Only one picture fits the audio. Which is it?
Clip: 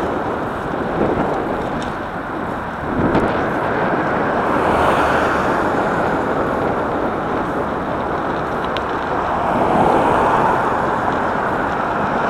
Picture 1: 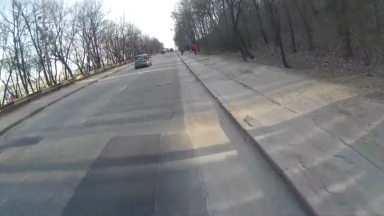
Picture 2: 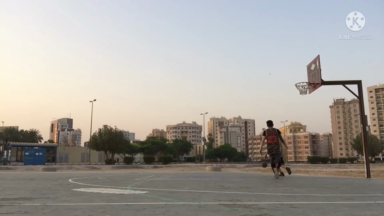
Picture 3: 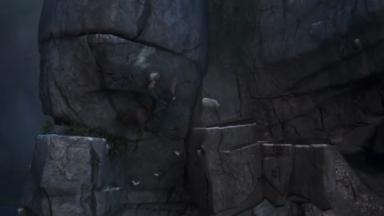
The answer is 1